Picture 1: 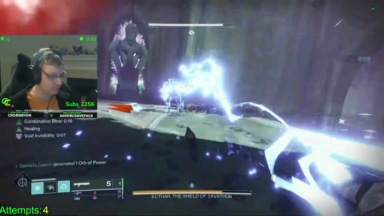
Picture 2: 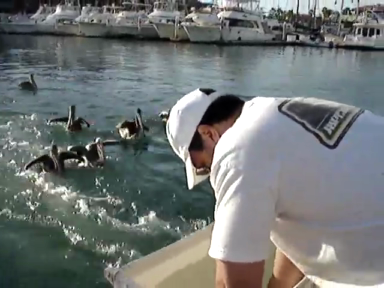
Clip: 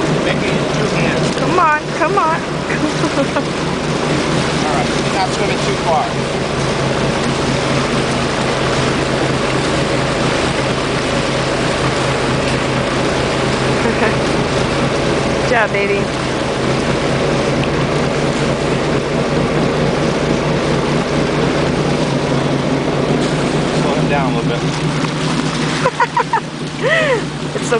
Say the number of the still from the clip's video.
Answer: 2